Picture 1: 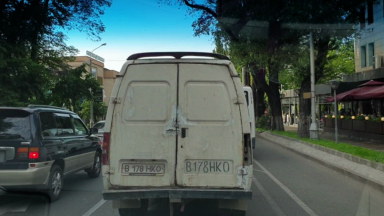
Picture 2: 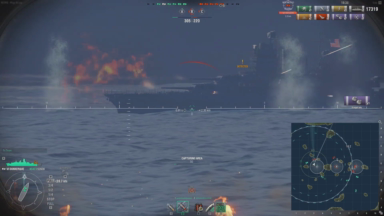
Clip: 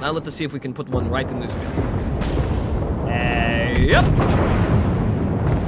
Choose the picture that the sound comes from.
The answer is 2